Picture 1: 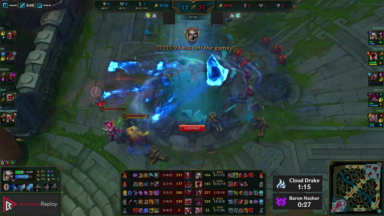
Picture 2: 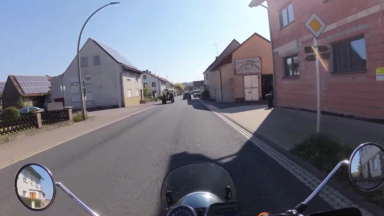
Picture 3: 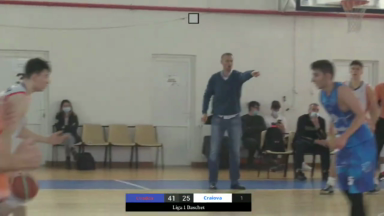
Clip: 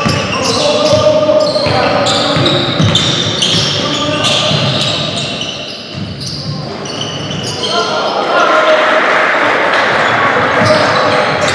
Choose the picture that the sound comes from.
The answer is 3